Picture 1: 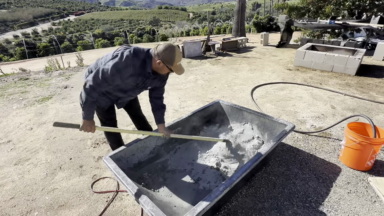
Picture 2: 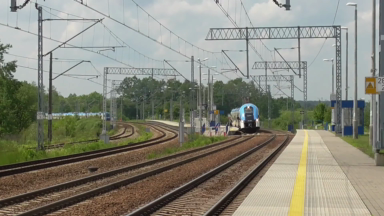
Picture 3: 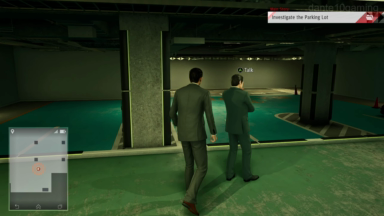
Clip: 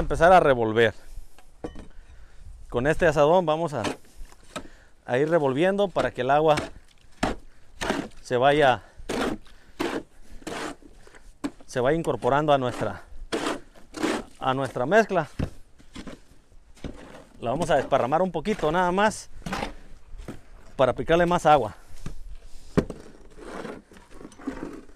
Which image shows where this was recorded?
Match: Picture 1